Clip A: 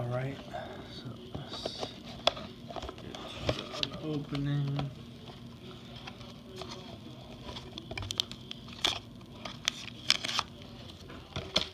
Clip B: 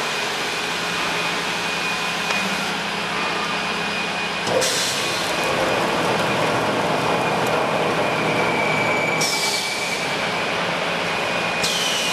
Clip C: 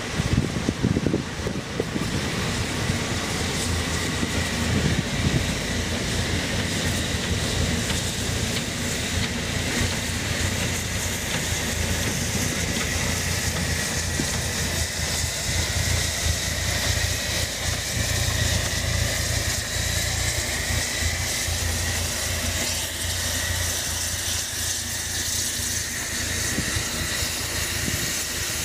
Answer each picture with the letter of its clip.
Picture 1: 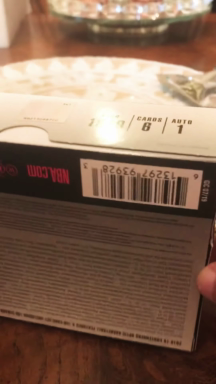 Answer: A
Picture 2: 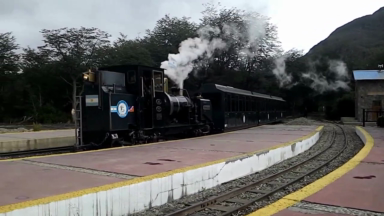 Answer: C